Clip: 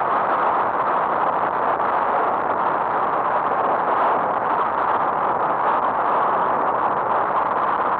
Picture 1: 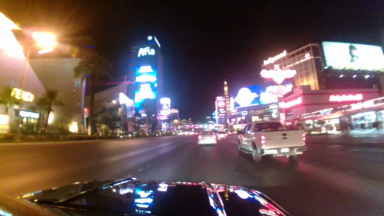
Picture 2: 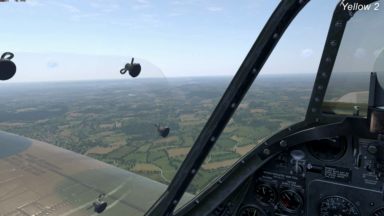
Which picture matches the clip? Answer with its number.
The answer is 1